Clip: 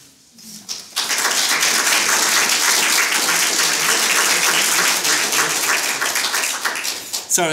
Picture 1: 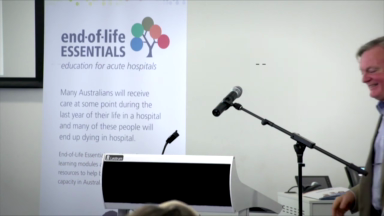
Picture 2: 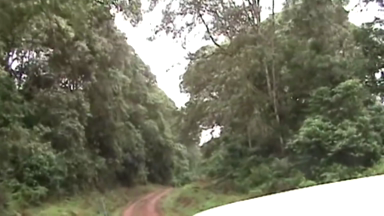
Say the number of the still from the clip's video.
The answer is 1